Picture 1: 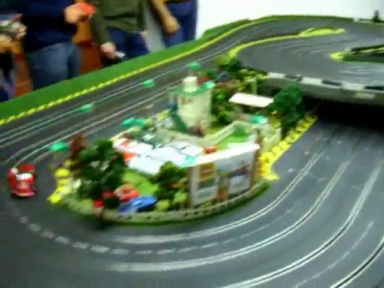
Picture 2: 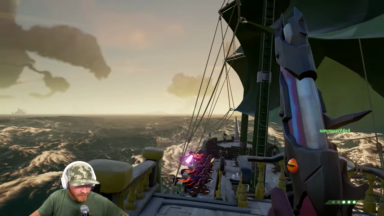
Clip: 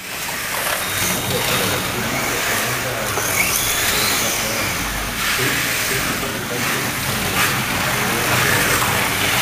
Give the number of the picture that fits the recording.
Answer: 1